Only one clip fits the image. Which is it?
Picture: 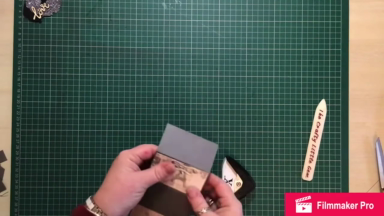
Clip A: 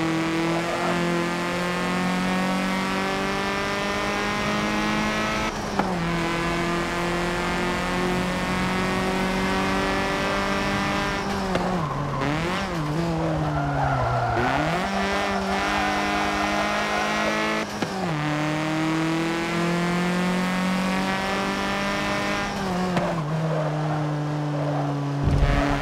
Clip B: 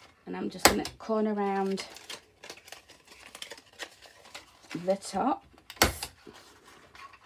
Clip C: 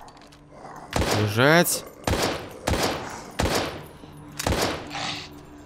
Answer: B